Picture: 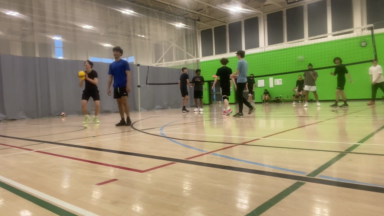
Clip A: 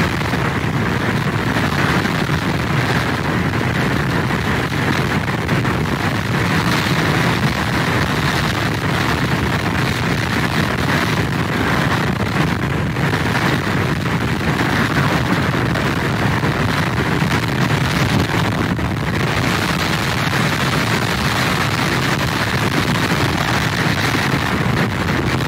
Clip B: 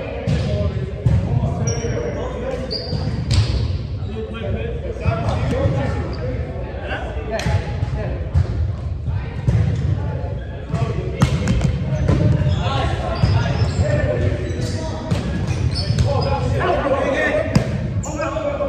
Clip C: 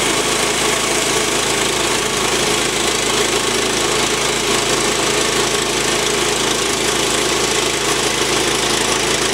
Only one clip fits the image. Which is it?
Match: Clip B